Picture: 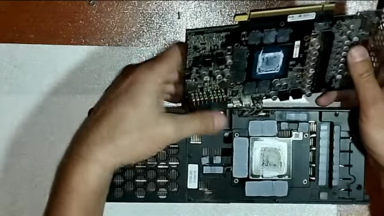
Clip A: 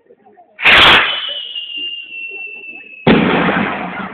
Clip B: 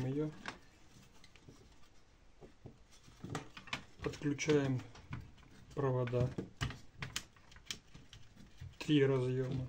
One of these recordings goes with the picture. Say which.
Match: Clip B